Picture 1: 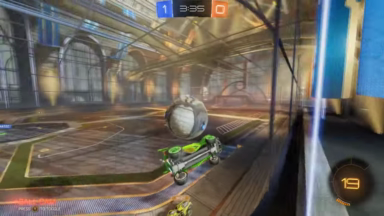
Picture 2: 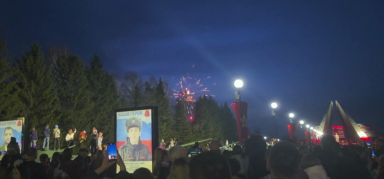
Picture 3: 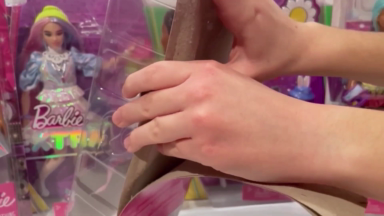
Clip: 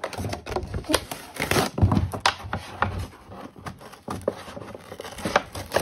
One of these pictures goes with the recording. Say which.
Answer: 3